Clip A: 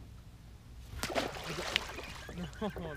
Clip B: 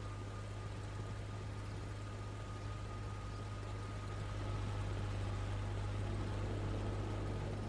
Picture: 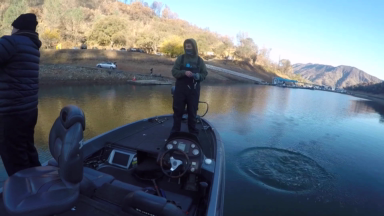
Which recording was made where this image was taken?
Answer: A